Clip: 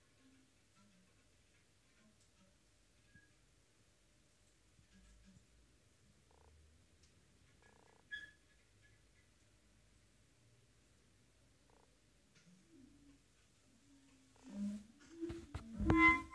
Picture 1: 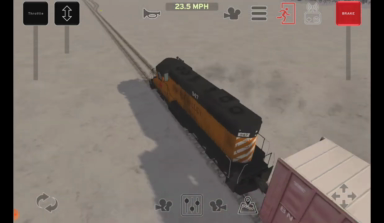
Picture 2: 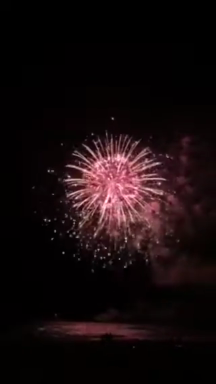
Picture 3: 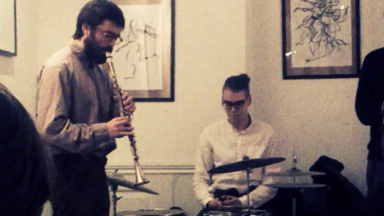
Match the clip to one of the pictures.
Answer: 3